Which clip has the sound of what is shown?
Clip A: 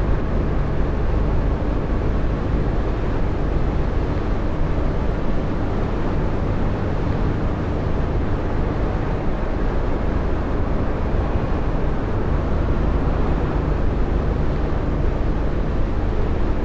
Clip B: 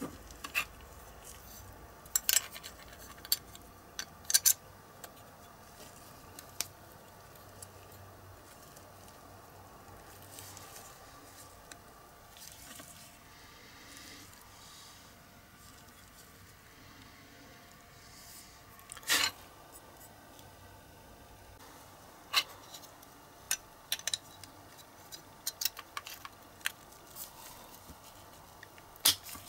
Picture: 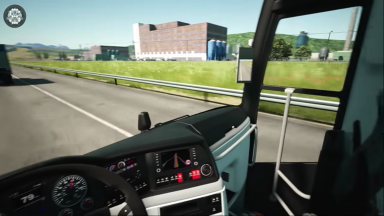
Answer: A